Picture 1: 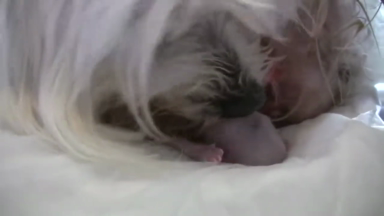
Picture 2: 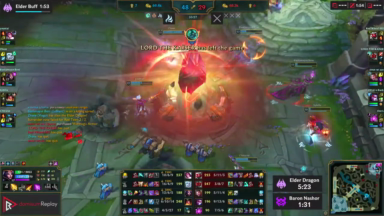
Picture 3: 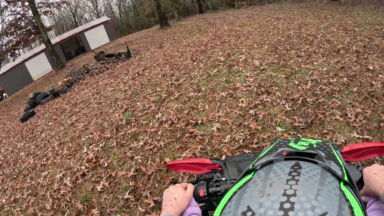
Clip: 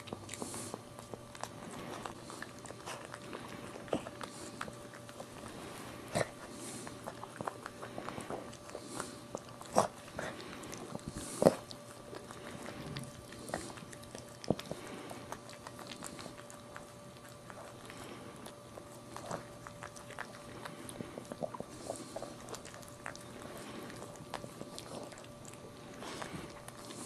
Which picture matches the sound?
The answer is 1